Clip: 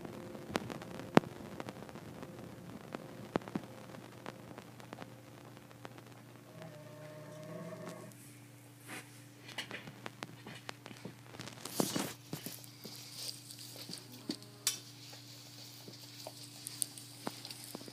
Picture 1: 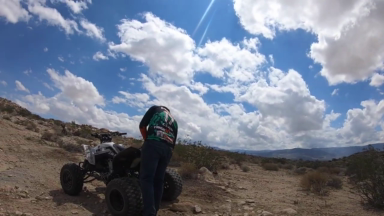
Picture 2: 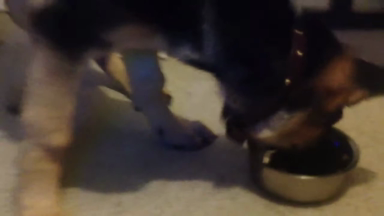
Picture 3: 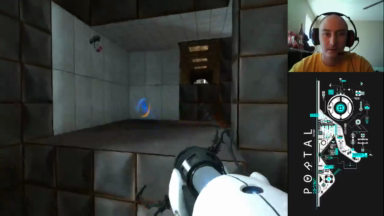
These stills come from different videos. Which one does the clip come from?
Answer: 2